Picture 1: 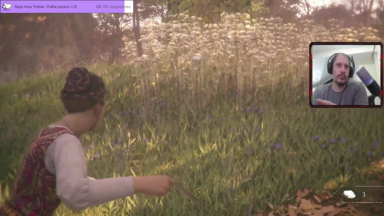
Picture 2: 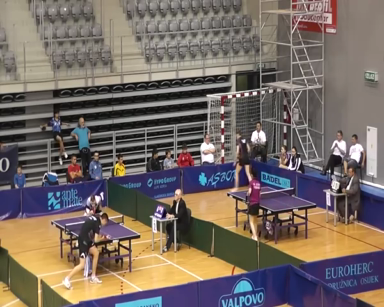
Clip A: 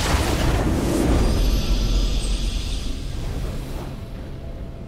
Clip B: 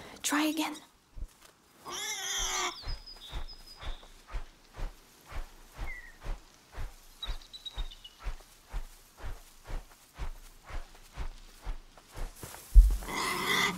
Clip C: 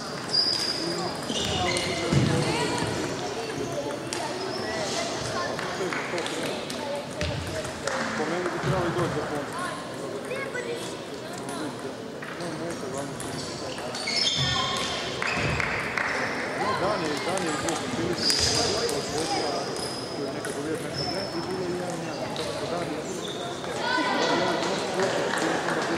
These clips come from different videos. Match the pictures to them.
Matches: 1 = B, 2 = C